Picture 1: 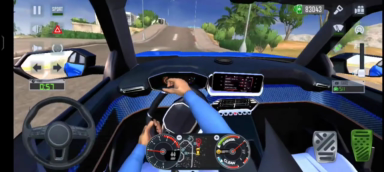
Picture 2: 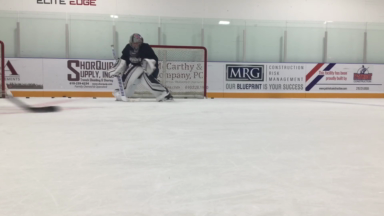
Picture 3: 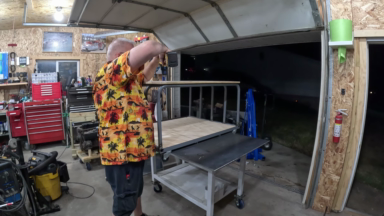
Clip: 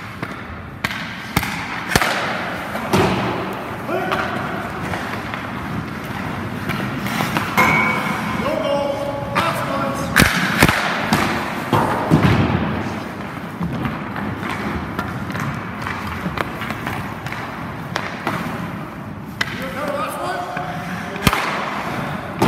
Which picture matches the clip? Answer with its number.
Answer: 2